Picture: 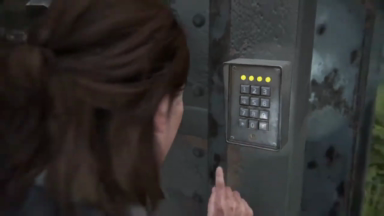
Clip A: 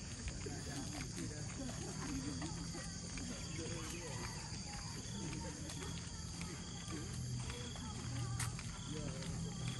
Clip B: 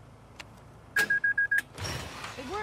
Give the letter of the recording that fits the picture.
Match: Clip B